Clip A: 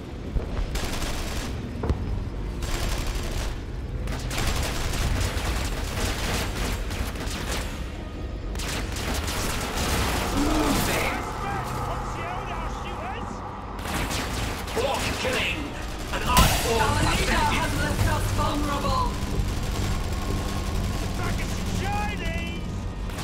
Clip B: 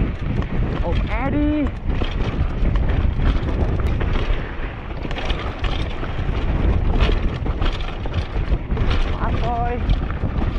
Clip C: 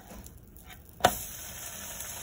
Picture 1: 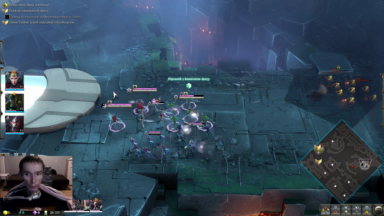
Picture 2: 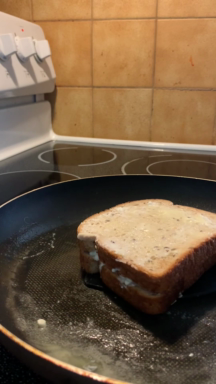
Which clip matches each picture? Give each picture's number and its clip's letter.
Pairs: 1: A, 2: C